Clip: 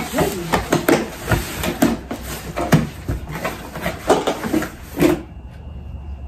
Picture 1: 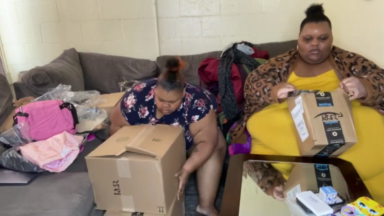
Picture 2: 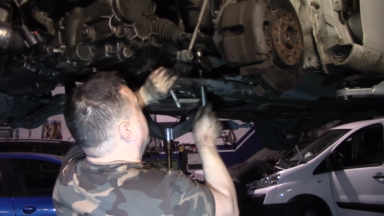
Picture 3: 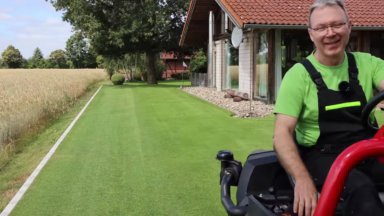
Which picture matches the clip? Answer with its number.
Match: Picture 1